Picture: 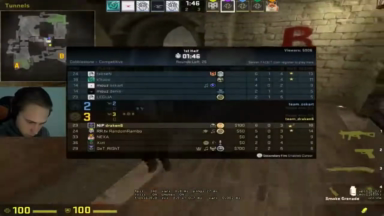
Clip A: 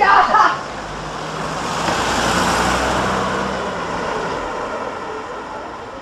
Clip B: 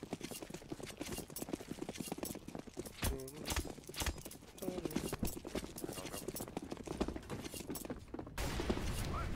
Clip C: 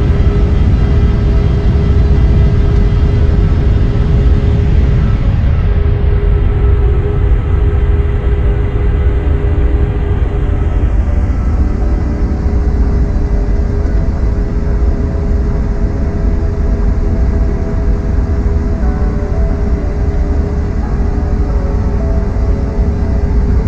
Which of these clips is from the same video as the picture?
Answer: B